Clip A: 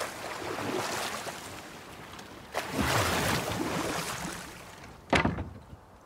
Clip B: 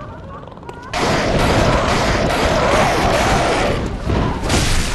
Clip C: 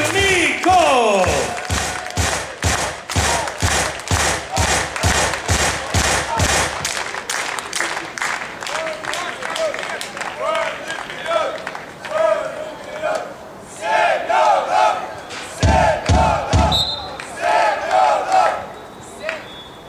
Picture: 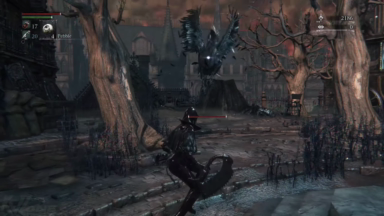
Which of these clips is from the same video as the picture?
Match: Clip B